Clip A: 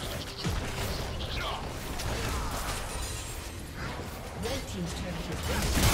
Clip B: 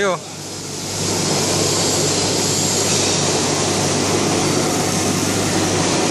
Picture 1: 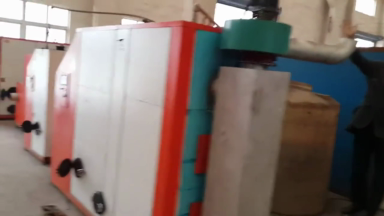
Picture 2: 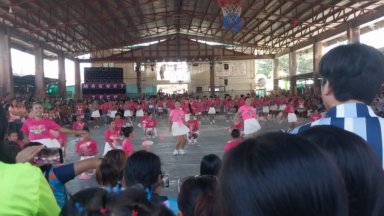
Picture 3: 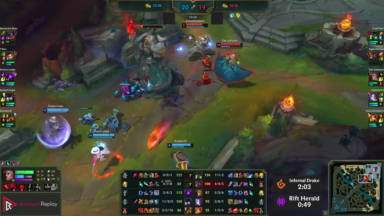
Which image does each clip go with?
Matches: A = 3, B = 1